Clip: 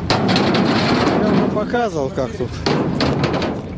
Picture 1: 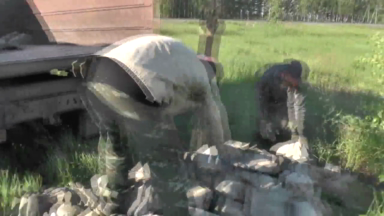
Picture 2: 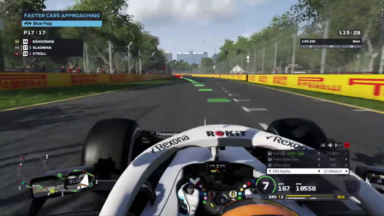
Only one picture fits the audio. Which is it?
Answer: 1